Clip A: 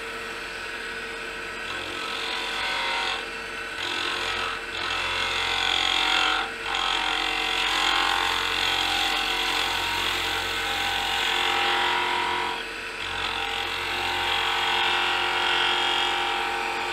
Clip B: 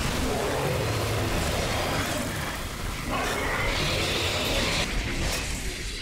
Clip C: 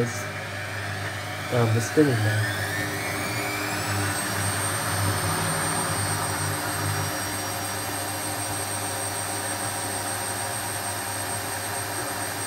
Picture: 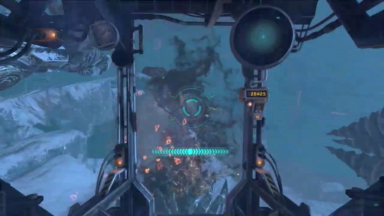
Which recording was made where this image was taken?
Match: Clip B